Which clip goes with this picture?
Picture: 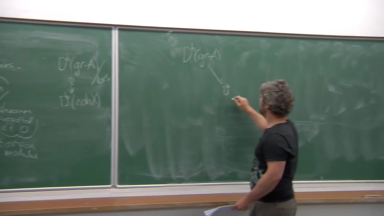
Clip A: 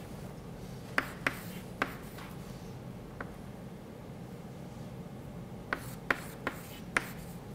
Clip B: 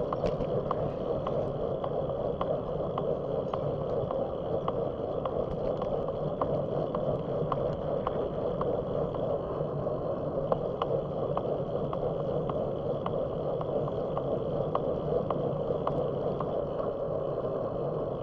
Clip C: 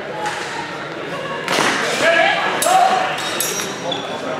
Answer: A